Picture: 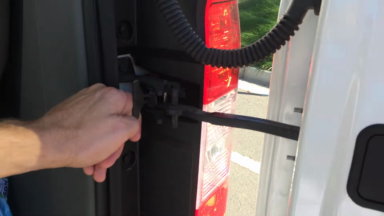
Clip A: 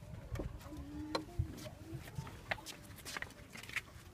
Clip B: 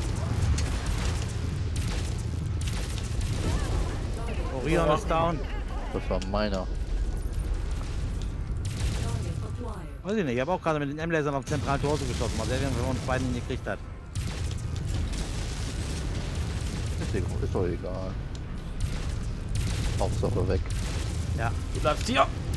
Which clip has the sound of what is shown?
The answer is A